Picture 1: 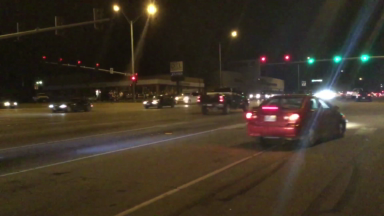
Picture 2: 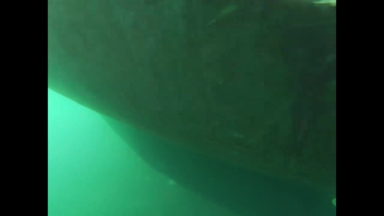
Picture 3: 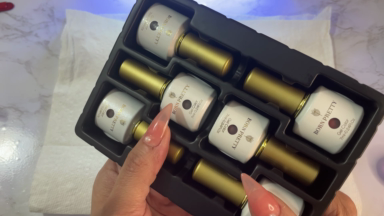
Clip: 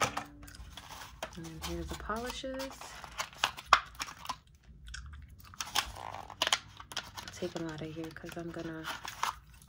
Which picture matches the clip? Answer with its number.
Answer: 3